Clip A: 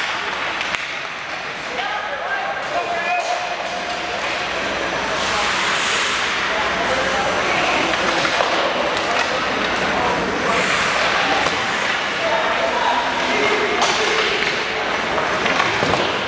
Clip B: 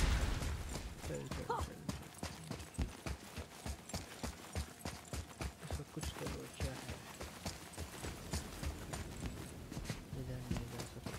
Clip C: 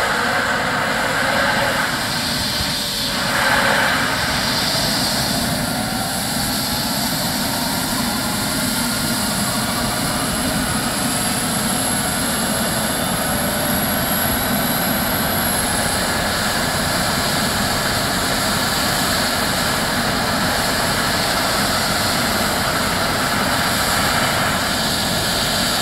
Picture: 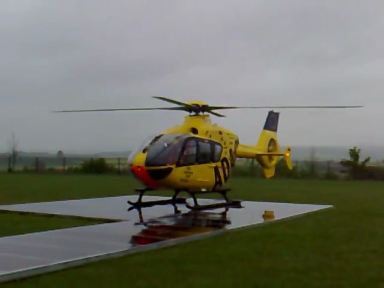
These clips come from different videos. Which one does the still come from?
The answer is C